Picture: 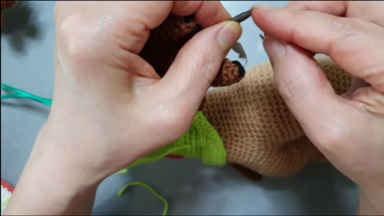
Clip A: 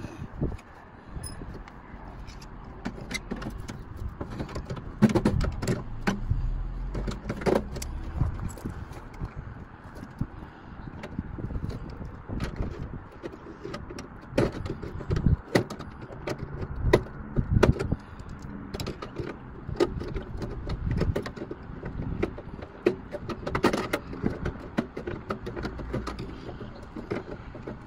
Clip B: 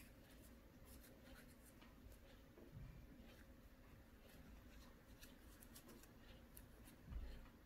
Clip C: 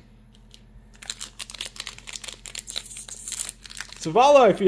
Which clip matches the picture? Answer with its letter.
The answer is B